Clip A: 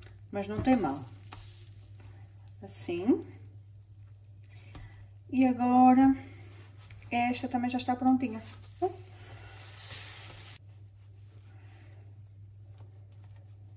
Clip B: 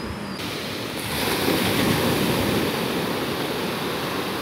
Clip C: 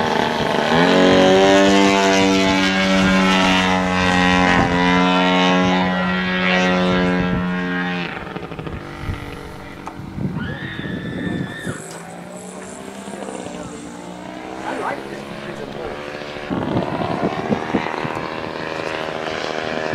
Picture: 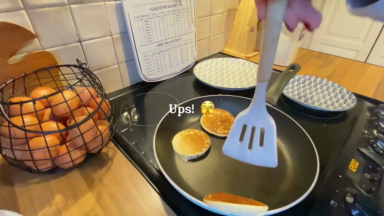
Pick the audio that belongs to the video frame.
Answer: A